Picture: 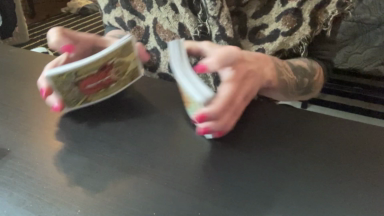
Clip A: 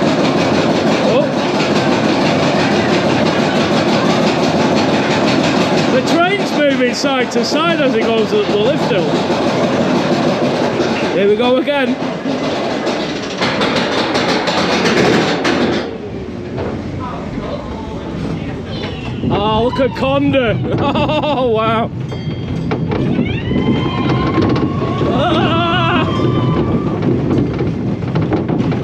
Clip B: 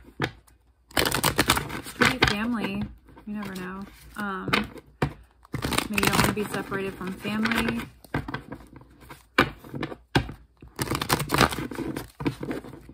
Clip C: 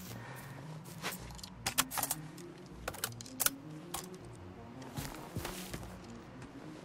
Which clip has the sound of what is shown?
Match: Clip B